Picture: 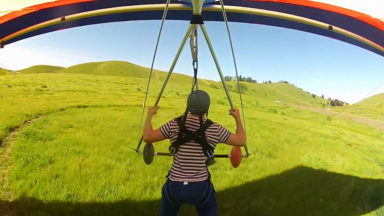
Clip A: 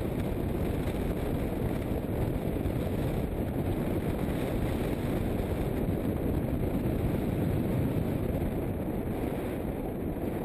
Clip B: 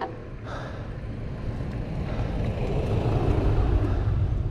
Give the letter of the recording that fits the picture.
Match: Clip A